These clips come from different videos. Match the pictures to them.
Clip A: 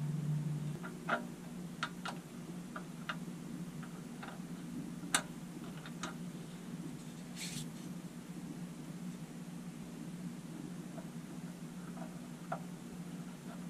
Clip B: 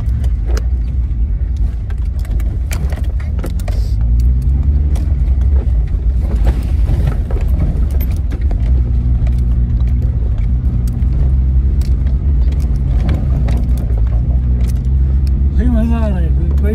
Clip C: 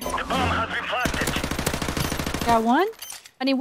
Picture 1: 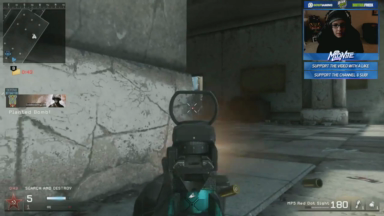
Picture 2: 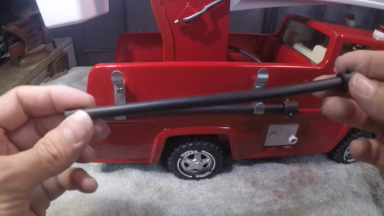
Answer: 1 C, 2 A